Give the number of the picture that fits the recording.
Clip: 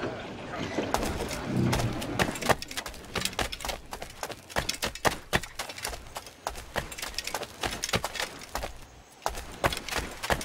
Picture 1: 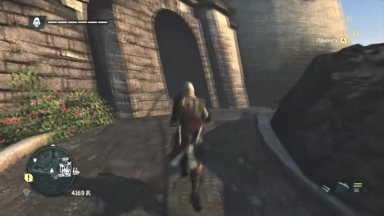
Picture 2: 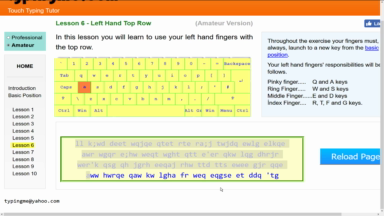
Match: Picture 1